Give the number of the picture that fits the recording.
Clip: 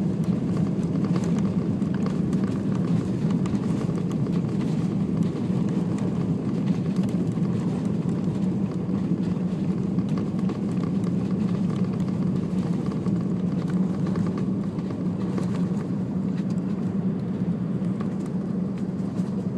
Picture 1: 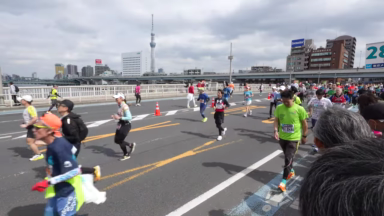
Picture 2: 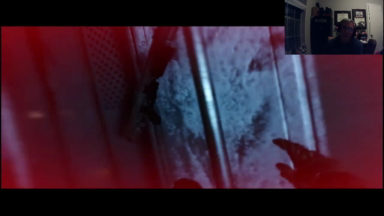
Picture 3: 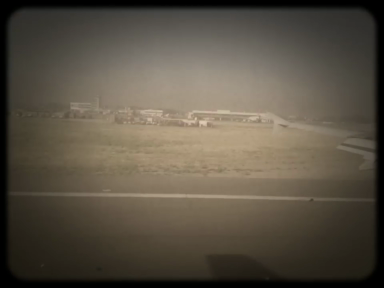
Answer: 3